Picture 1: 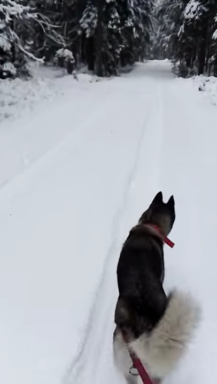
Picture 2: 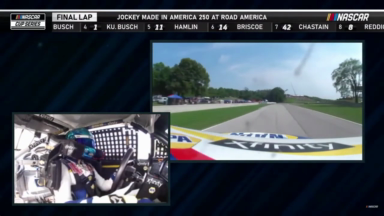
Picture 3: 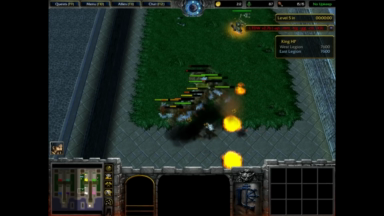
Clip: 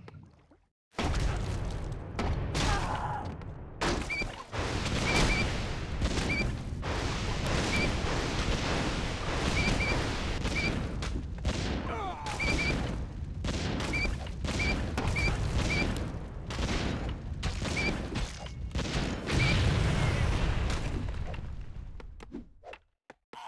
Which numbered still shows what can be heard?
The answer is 3